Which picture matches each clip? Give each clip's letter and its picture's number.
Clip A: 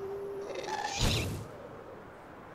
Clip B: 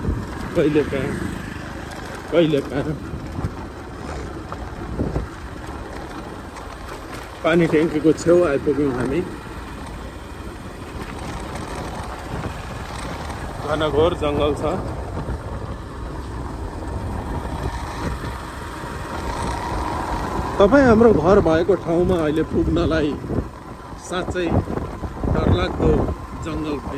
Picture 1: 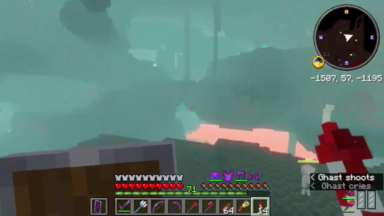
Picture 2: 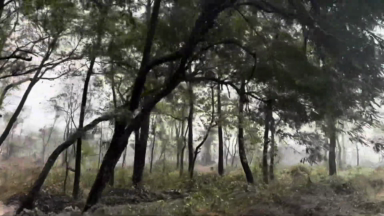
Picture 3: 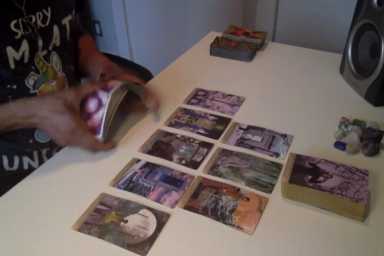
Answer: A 1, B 2